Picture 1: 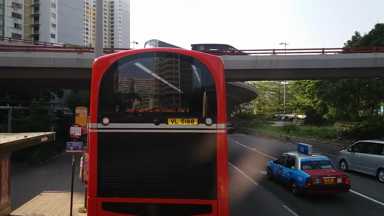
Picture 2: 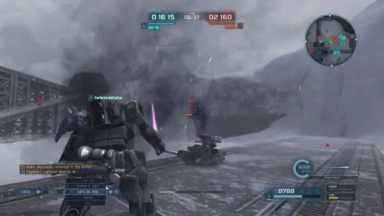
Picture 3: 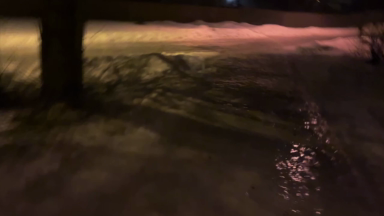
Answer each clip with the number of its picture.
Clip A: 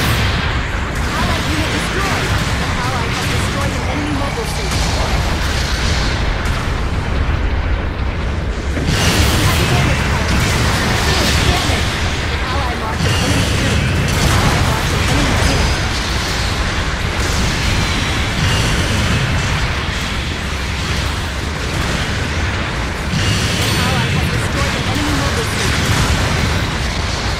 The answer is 2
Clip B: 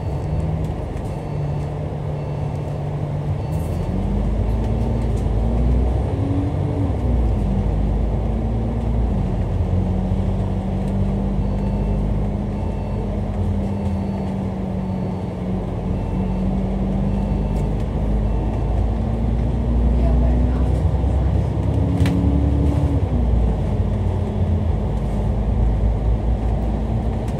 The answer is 1